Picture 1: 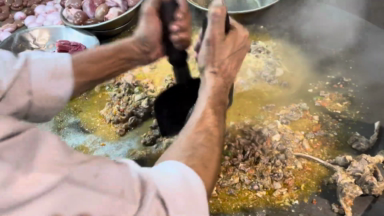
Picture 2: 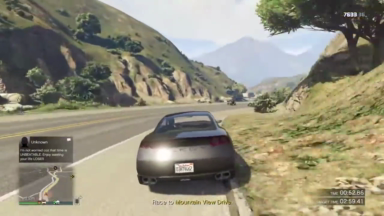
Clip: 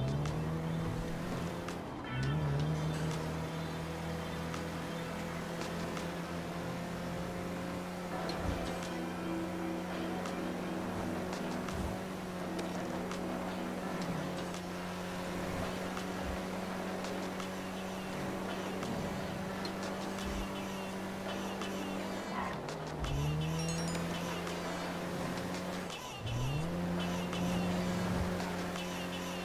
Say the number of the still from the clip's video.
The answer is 2